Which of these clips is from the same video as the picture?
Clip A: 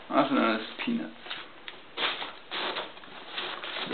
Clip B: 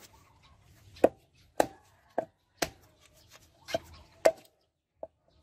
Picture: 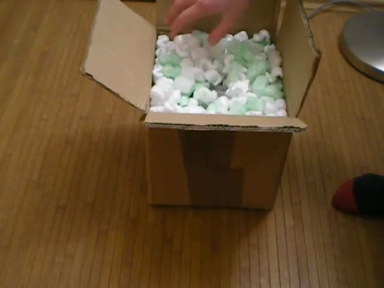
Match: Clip A